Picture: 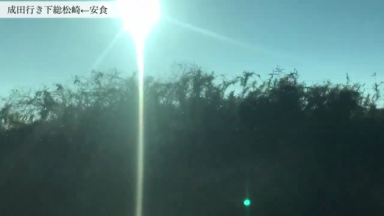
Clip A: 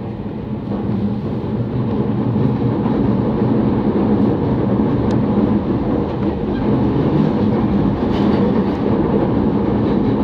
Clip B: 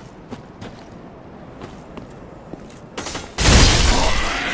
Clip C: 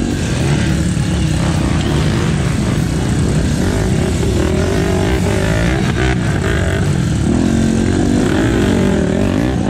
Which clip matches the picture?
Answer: A